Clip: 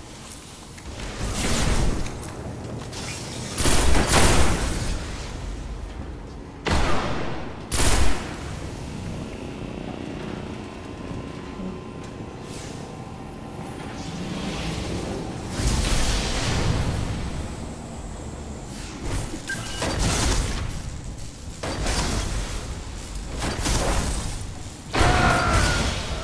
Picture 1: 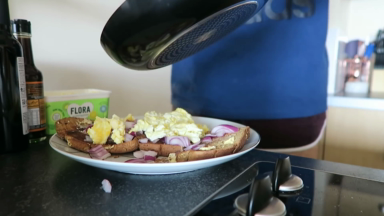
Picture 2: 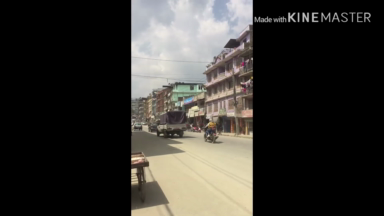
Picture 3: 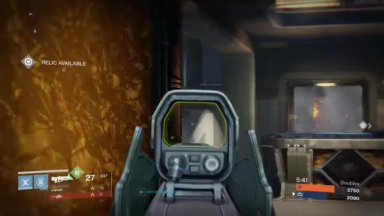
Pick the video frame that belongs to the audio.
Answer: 3